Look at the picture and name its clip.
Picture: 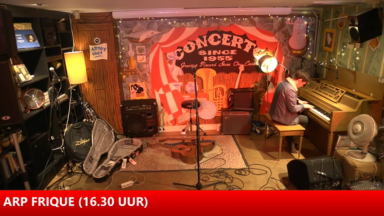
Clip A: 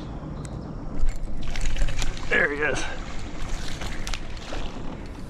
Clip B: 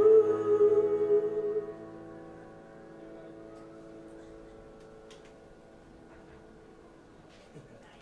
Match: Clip B